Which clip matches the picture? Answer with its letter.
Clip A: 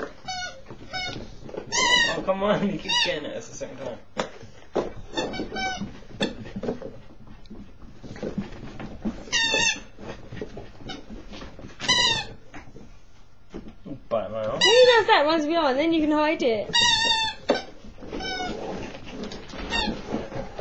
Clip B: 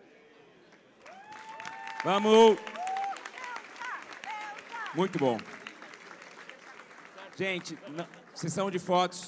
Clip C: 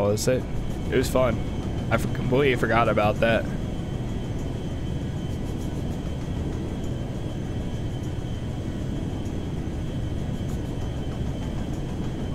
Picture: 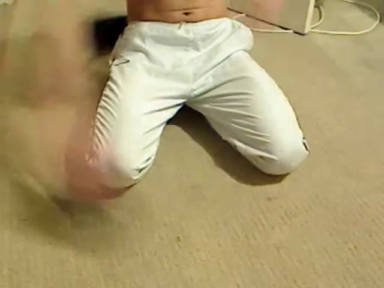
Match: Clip A